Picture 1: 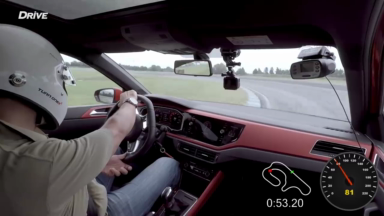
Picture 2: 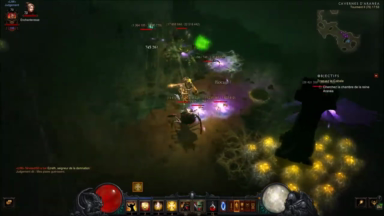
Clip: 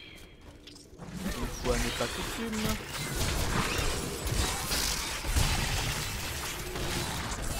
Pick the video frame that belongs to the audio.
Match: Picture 2